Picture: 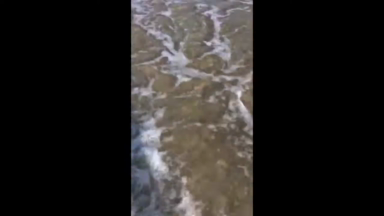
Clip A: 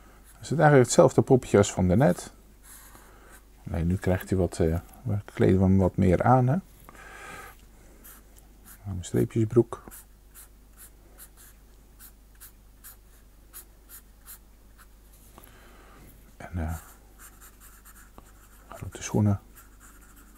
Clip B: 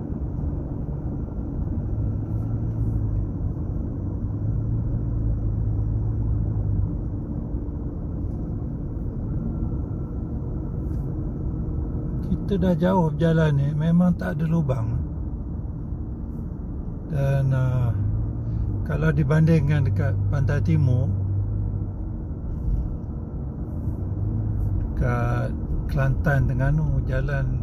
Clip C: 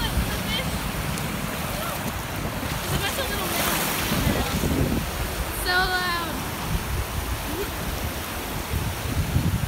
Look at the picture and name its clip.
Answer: C